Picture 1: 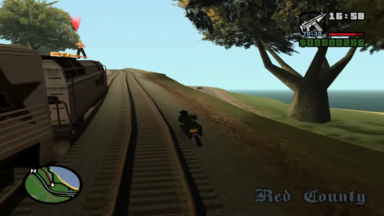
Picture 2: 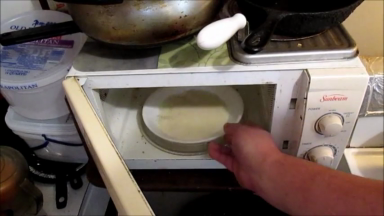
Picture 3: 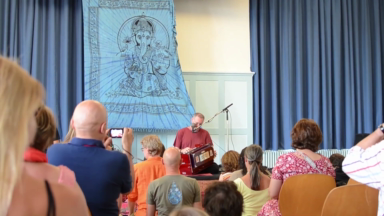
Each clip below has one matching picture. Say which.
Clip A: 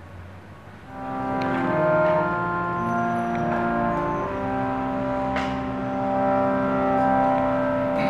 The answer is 3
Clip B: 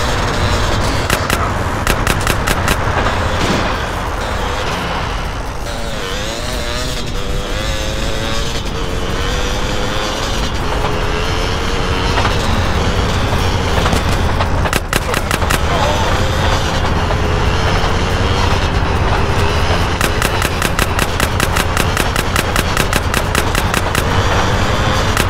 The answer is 1